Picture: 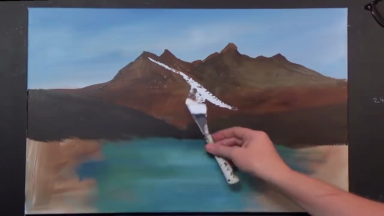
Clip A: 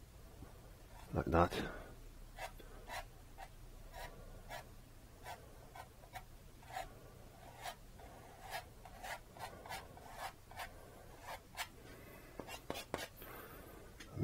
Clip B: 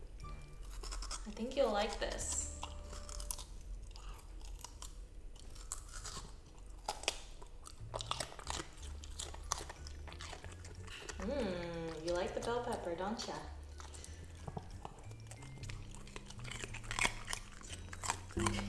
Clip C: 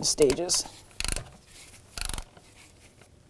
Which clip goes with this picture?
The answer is A